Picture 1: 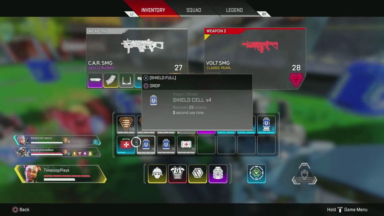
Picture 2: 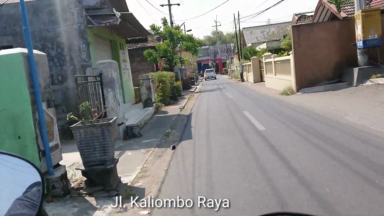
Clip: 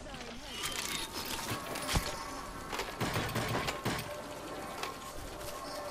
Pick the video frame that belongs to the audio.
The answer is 1